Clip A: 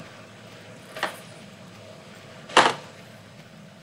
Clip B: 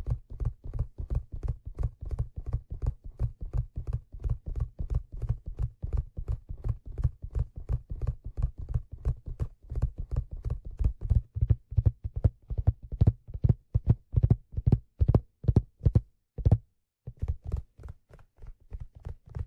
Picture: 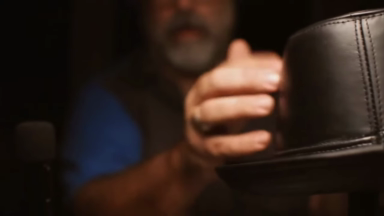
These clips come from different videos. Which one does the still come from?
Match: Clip B